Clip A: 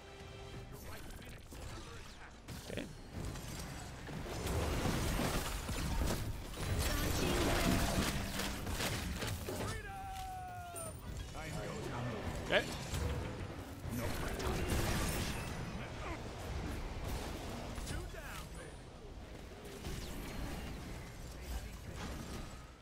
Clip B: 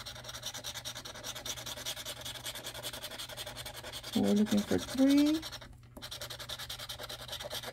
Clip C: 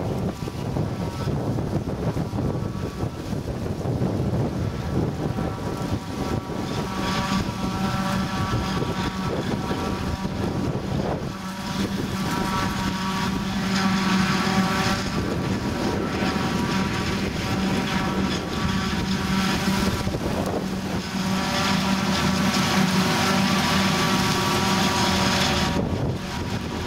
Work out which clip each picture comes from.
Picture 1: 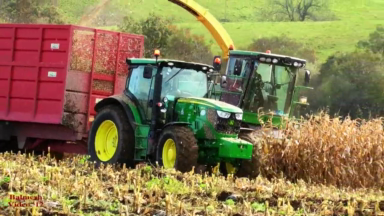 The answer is C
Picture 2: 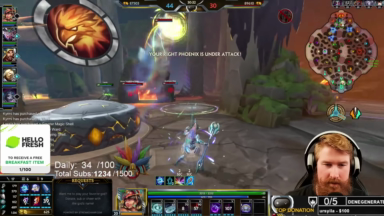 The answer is A